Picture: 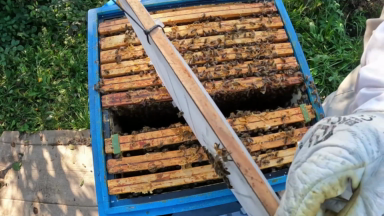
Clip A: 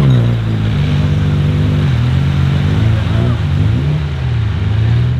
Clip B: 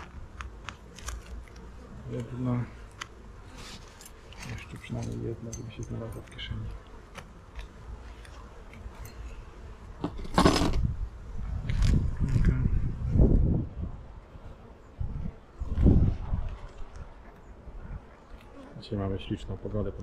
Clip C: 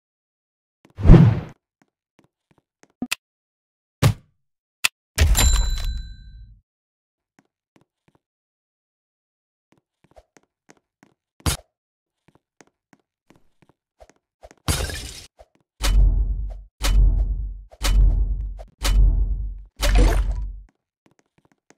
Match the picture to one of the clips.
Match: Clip B